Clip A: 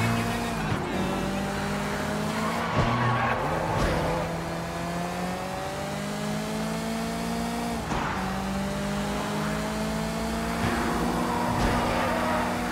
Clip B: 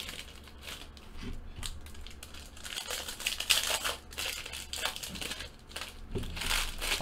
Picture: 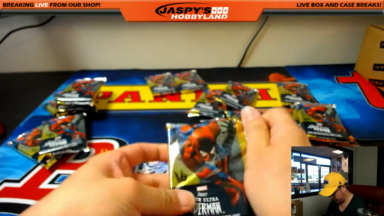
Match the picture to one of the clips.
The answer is B